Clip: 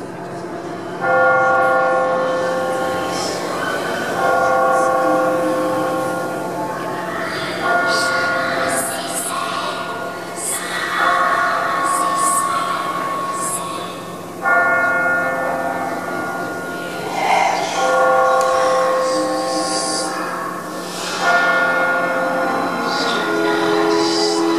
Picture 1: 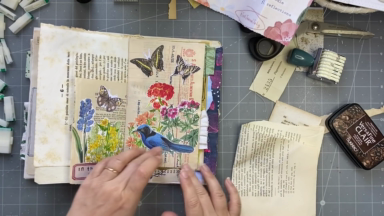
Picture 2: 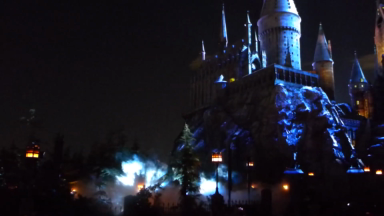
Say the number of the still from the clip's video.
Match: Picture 2